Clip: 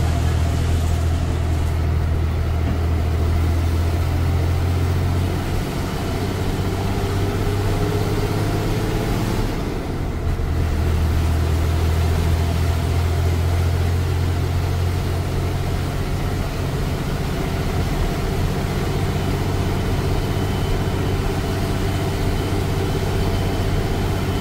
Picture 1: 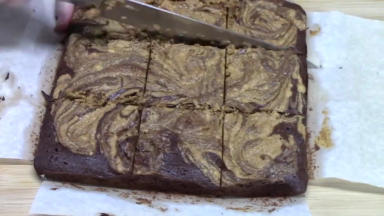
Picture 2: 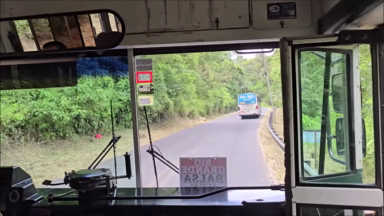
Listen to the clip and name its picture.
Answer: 2